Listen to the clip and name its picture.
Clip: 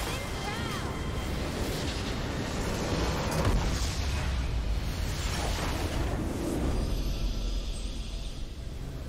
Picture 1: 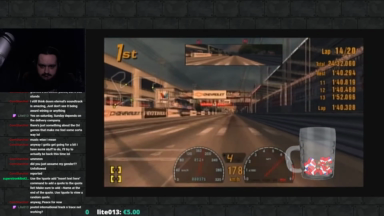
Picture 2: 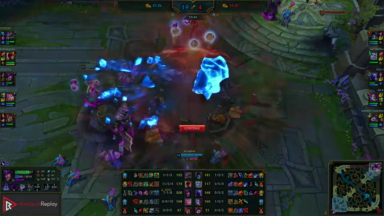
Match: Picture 2